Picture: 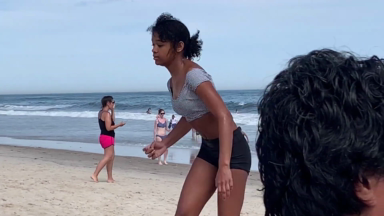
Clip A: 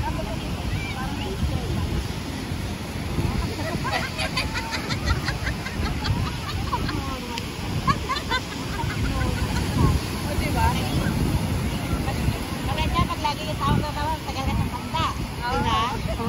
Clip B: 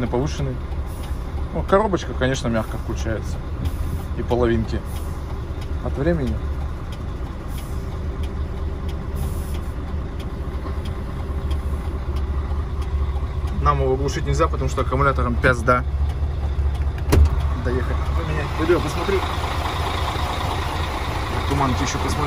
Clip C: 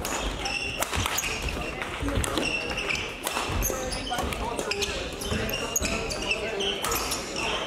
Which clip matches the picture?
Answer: A